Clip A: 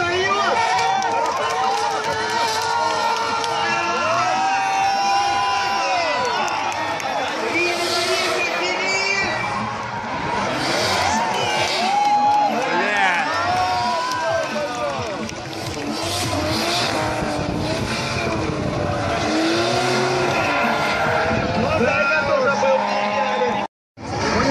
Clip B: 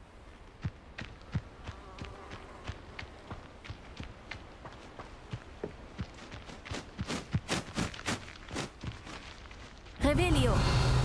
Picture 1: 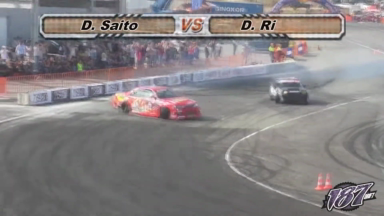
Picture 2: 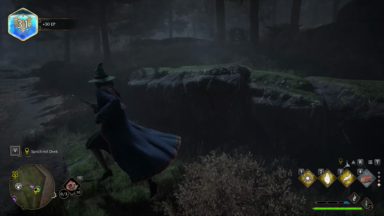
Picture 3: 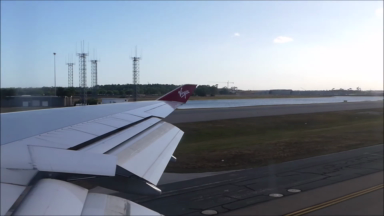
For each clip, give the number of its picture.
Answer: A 1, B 2